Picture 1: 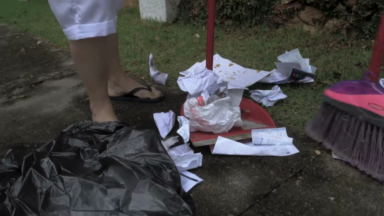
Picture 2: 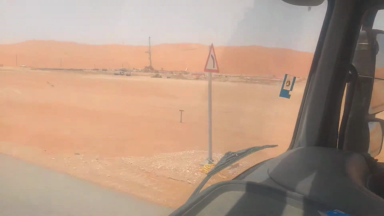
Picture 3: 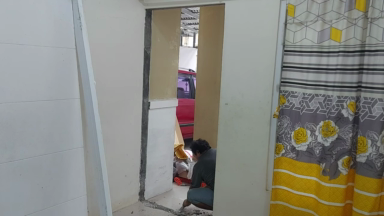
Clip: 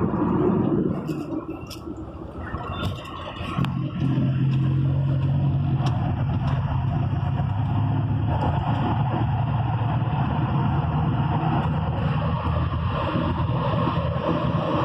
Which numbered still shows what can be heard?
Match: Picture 2